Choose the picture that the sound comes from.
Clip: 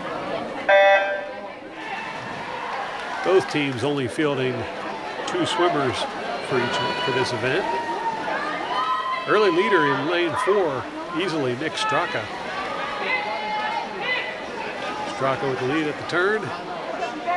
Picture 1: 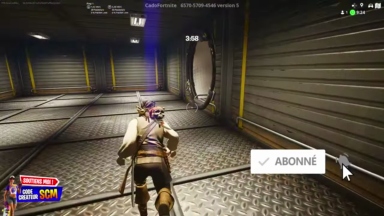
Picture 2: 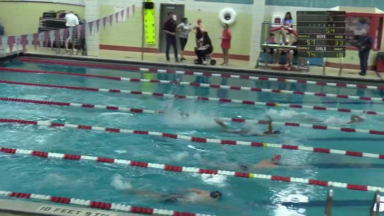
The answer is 2